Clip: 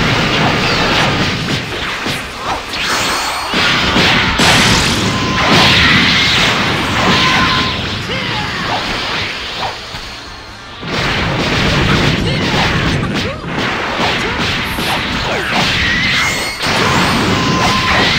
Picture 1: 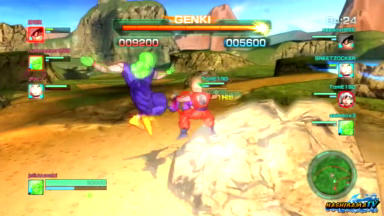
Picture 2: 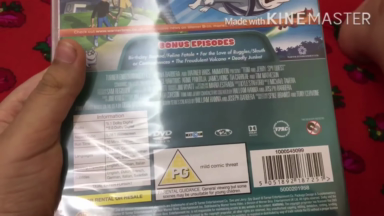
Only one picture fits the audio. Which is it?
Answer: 1